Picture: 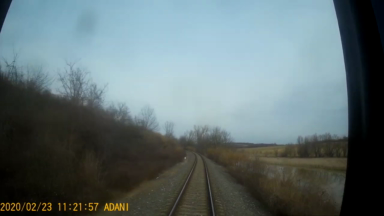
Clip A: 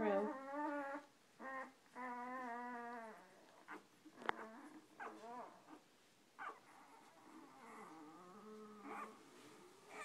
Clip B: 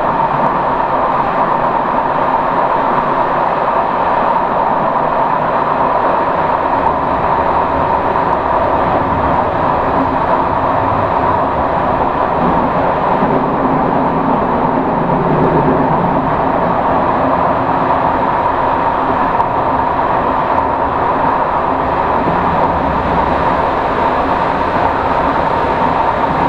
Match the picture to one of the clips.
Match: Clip B